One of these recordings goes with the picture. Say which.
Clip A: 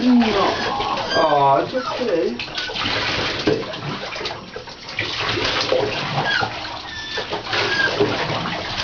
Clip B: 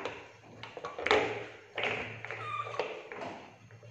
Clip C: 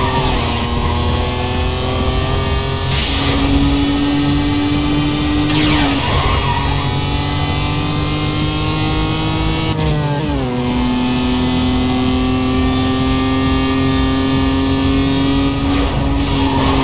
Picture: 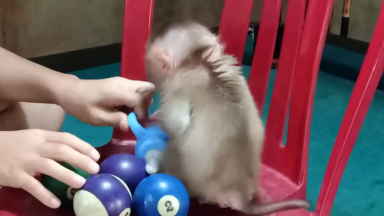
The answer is B